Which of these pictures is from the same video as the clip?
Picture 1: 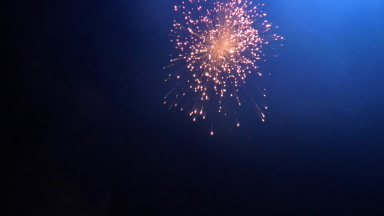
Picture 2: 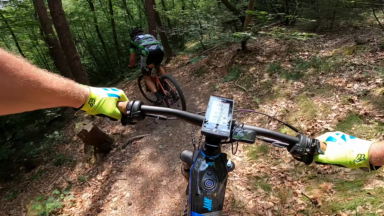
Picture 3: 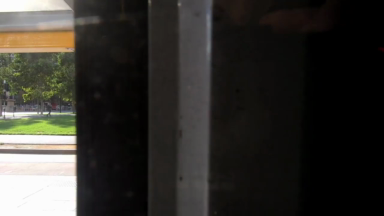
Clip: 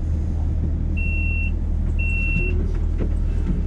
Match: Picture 3